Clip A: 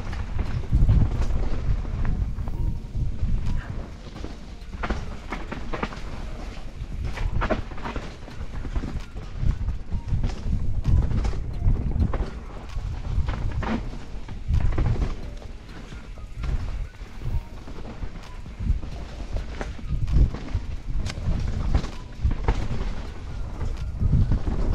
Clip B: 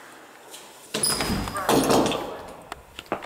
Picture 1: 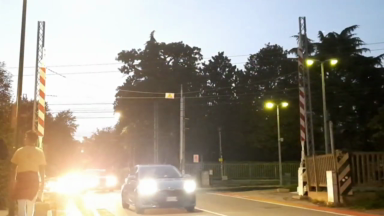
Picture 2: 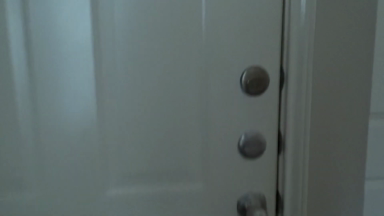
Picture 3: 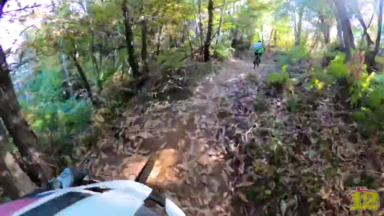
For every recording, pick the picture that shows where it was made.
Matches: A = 3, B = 2